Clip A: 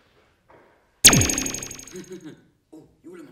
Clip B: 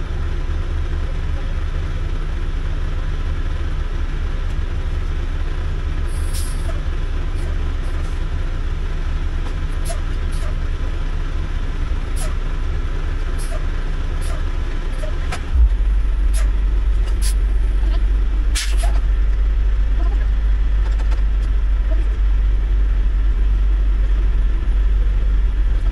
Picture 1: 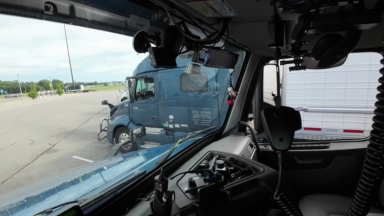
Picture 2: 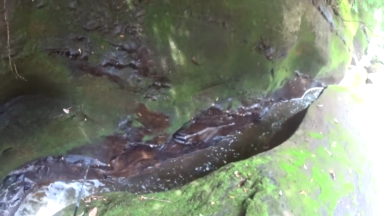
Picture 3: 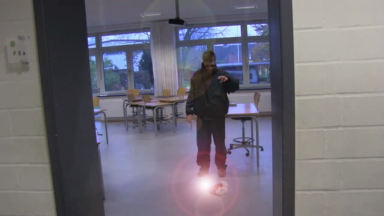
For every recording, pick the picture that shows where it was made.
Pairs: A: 3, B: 1